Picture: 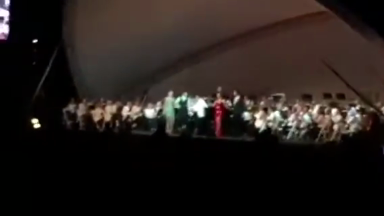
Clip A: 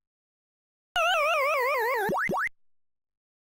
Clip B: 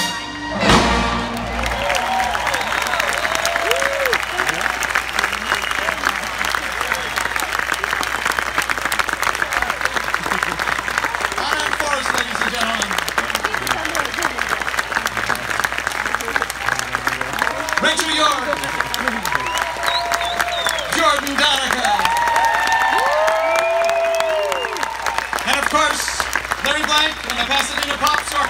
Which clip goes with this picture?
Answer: B